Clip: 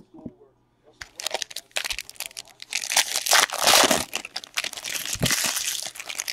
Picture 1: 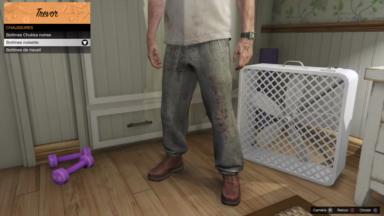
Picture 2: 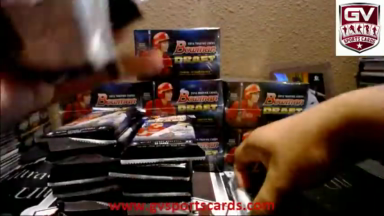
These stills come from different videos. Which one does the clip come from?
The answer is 2